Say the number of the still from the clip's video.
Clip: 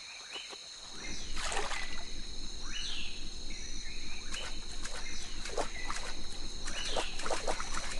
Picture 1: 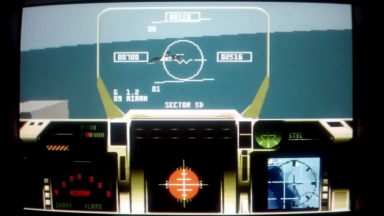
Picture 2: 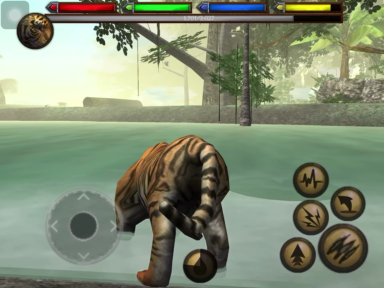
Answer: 2